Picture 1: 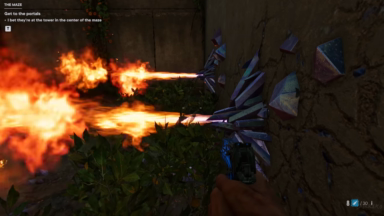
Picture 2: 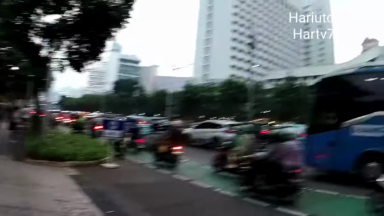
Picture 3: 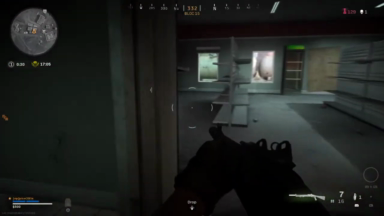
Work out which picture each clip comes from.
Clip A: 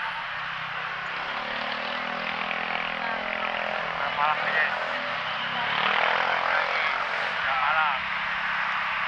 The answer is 2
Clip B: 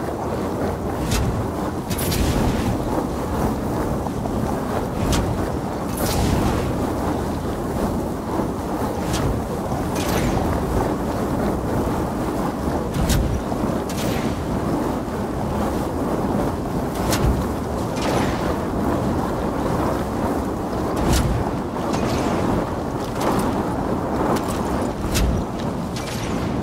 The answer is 1